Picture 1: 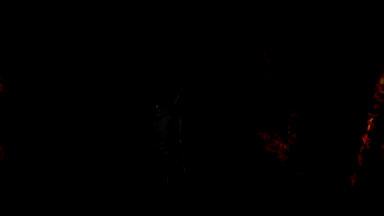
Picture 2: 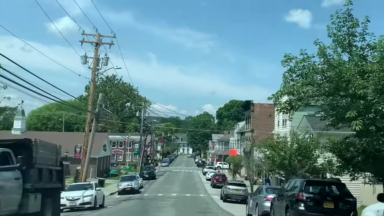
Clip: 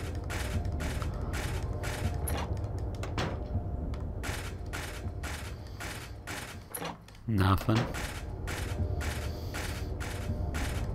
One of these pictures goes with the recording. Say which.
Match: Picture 1